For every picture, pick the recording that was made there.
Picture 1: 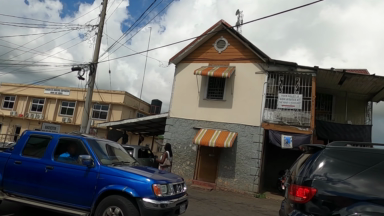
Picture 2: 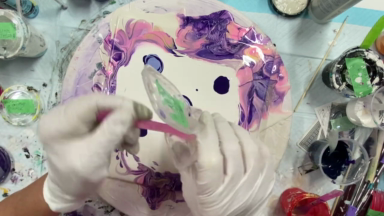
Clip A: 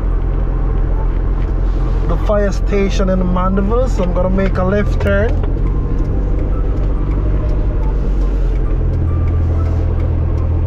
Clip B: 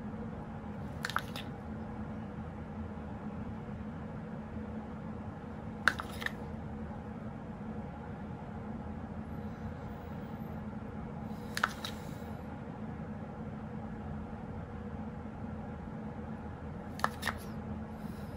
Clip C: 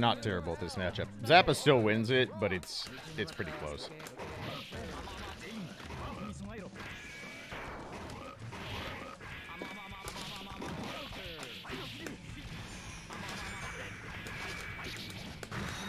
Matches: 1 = A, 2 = B